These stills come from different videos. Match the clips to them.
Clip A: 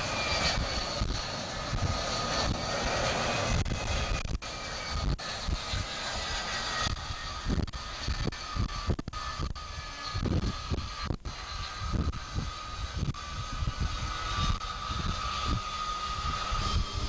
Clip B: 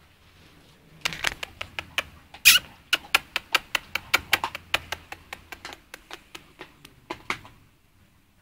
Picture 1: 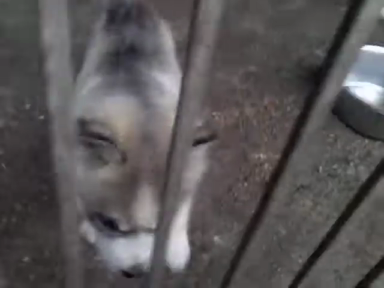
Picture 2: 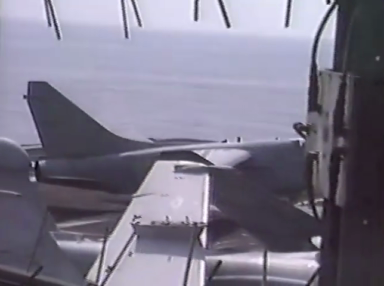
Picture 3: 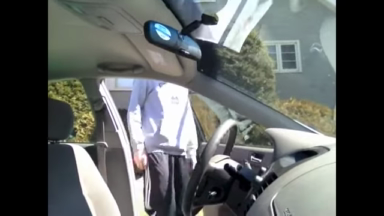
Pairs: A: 2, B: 1